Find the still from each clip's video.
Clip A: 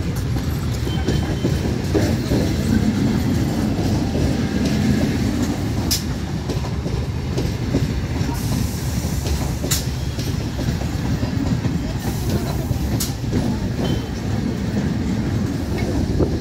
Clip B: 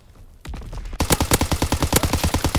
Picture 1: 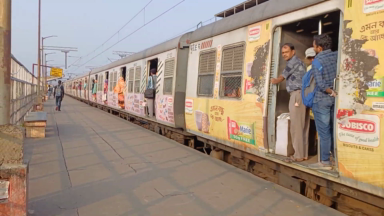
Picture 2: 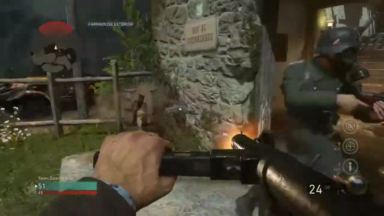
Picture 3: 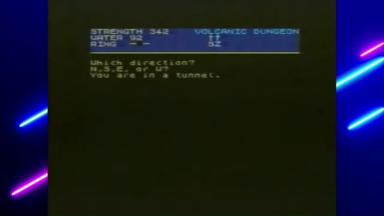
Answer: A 1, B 2